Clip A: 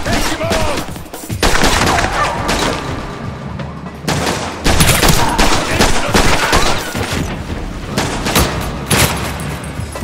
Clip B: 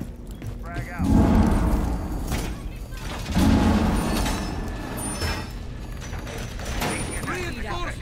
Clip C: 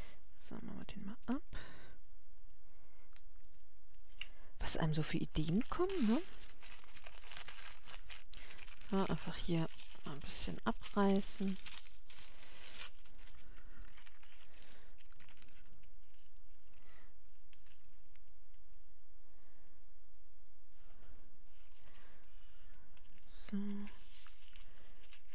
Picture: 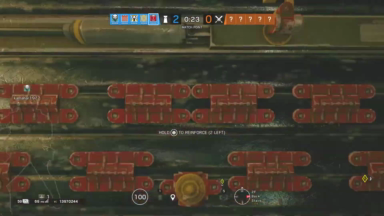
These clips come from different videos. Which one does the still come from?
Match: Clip B